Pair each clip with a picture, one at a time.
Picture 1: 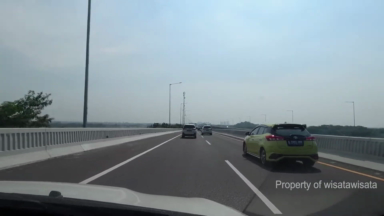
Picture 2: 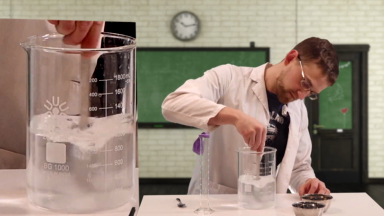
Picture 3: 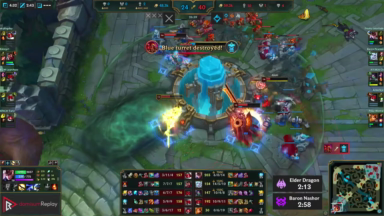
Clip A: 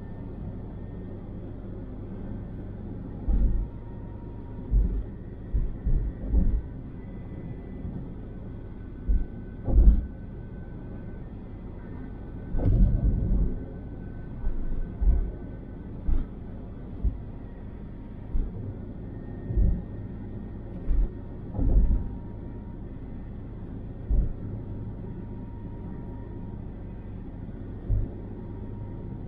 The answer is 1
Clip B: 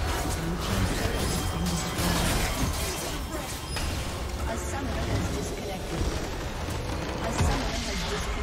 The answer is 3